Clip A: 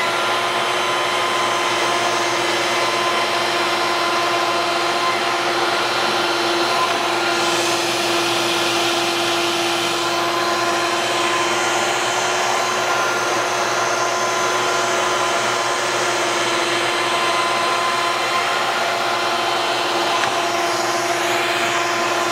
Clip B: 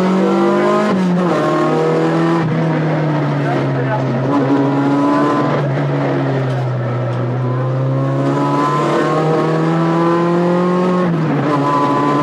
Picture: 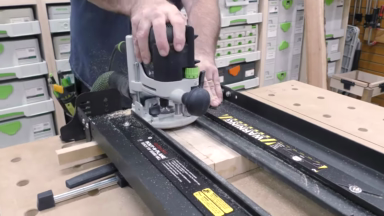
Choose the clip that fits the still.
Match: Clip A